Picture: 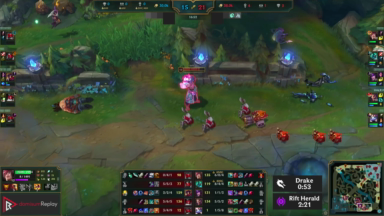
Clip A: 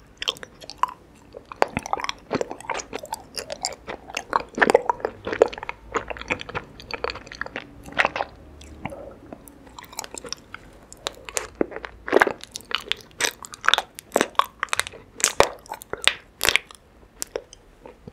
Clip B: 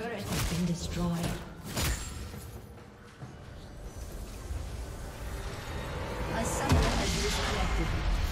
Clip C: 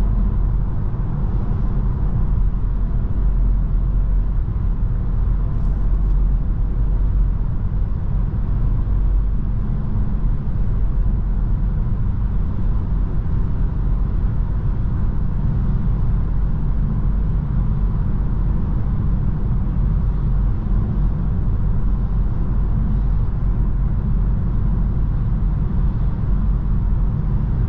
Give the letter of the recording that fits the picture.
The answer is B